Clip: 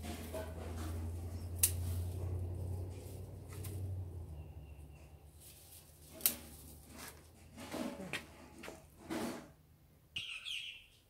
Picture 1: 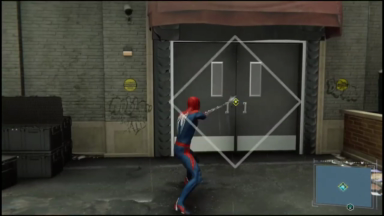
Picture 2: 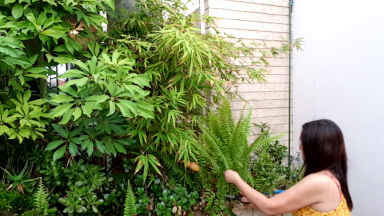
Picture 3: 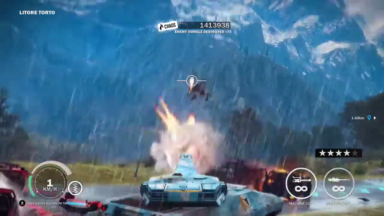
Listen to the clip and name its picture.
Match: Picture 2